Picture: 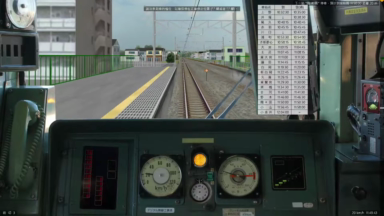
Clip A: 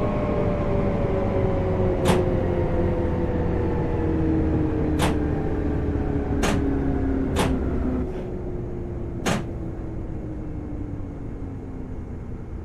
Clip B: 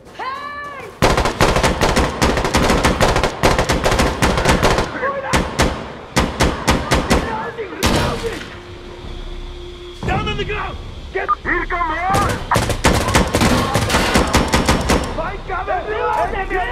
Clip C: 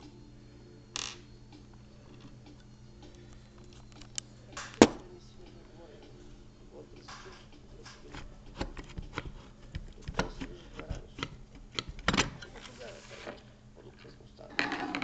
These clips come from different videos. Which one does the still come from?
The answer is A